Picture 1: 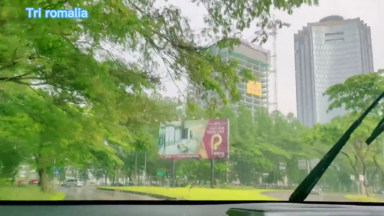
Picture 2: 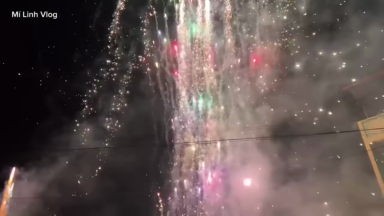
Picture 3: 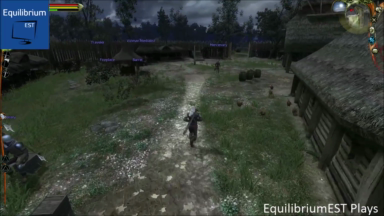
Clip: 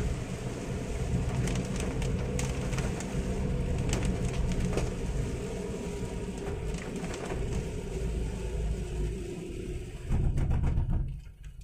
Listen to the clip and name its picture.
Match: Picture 1